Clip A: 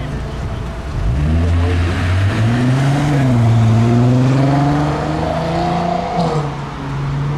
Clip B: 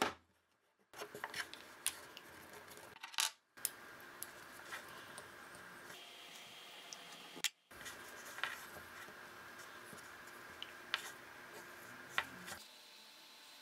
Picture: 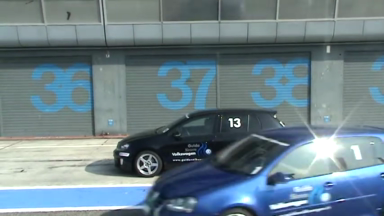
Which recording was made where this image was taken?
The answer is A